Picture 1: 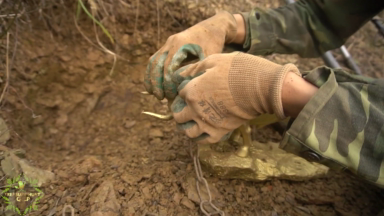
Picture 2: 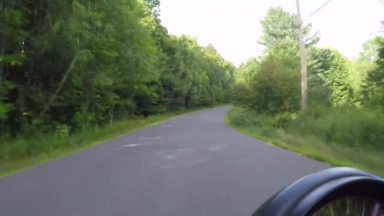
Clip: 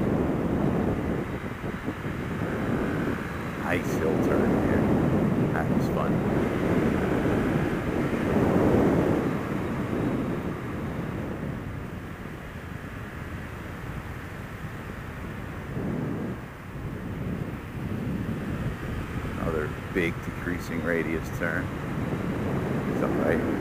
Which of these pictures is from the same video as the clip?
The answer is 2